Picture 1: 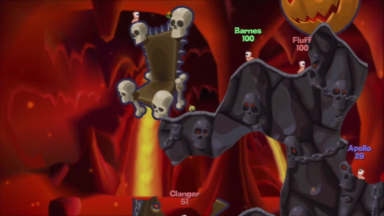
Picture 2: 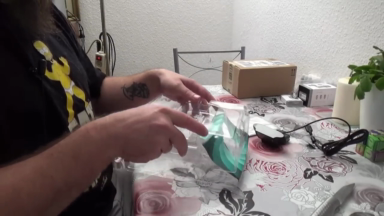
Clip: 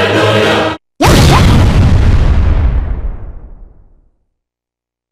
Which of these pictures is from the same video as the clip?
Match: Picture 1